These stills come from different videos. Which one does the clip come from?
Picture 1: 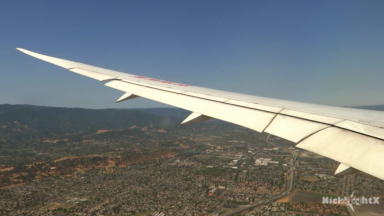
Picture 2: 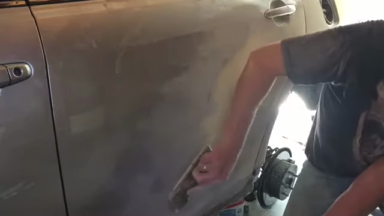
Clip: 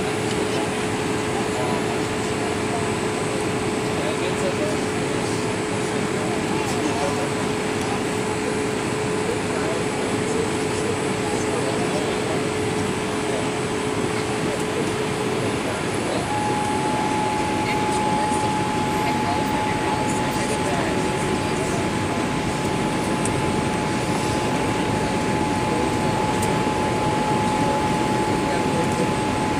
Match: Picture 1